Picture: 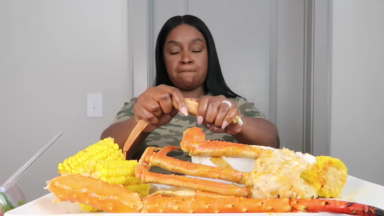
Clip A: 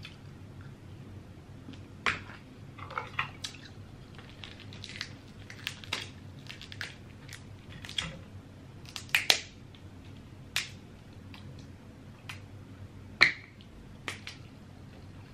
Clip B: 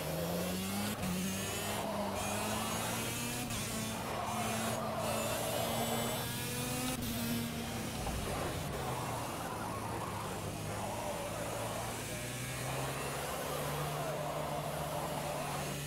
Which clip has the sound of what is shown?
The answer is A